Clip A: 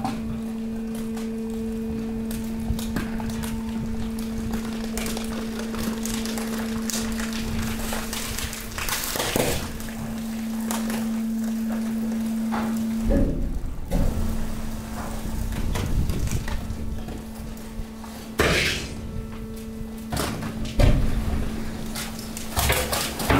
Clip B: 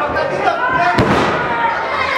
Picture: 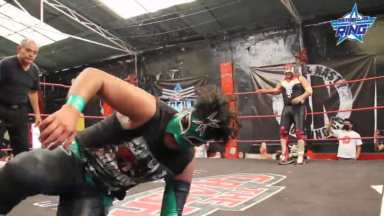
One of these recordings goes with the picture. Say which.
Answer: B